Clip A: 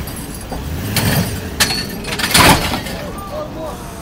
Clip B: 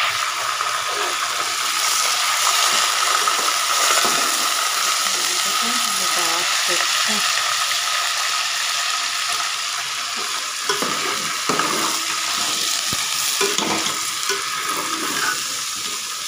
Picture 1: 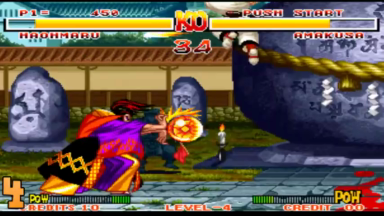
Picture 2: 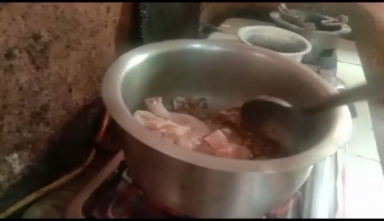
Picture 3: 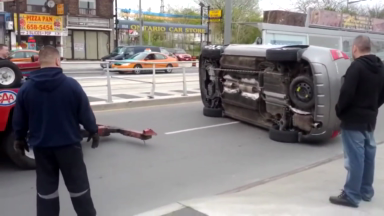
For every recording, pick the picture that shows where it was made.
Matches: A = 3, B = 2